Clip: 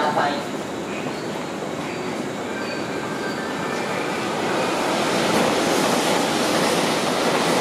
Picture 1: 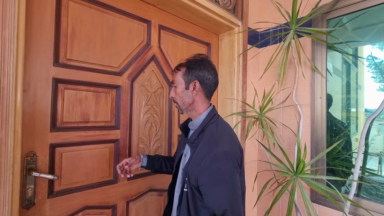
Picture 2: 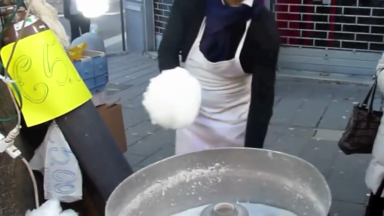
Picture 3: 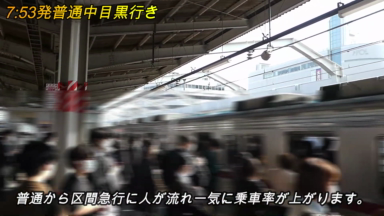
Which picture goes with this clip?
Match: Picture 3